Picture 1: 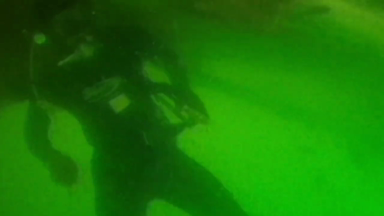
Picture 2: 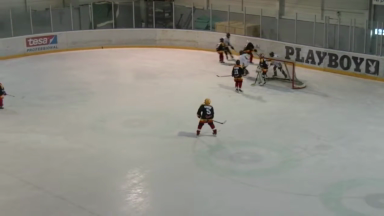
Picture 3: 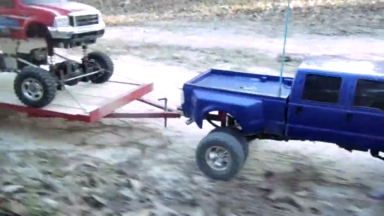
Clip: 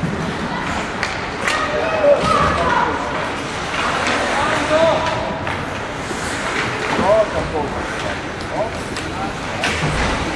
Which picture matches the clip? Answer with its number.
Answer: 2